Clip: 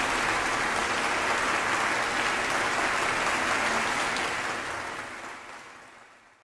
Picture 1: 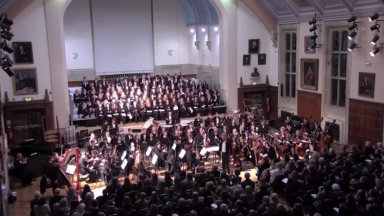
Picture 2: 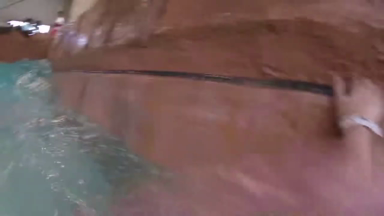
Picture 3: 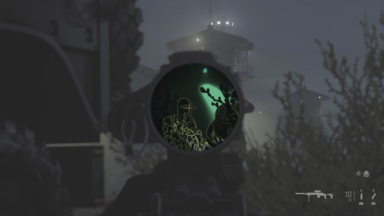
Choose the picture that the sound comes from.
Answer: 1